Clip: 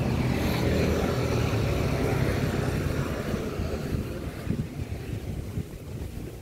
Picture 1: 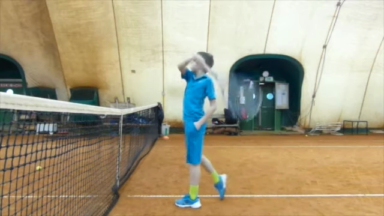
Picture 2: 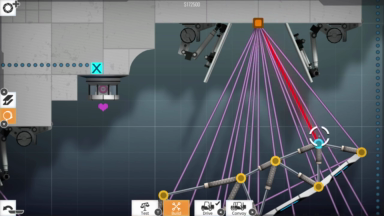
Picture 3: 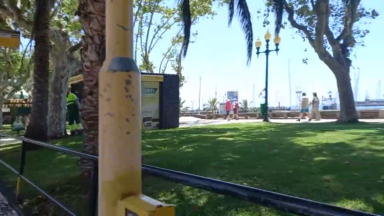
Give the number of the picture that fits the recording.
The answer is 3